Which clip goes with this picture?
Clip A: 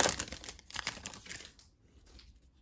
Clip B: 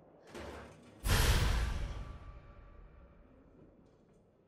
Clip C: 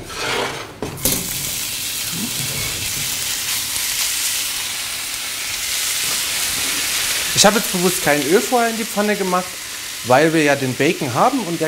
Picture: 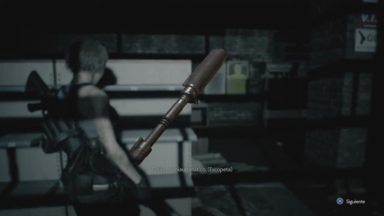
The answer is B